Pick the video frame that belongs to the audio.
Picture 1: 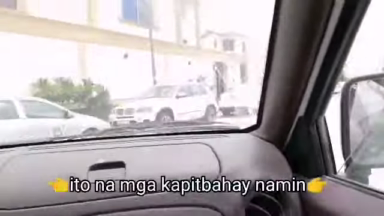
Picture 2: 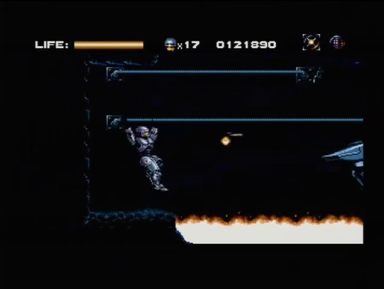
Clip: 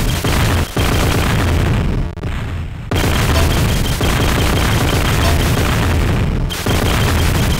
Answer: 2